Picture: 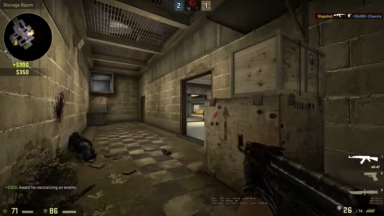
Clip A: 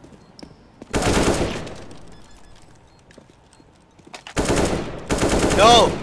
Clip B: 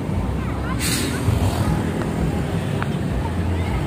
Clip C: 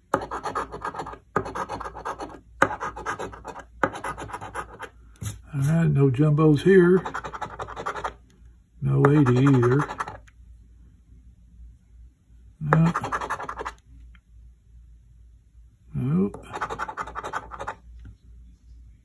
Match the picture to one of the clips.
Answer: A